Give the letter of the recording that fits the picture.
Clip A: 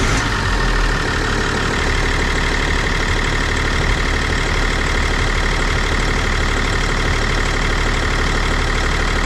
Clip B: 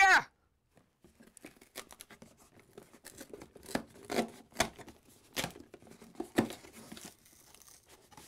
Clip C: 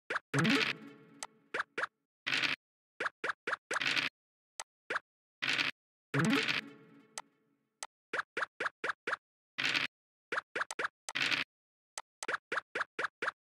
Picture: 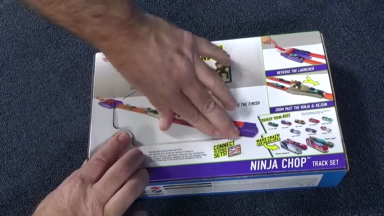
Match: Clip B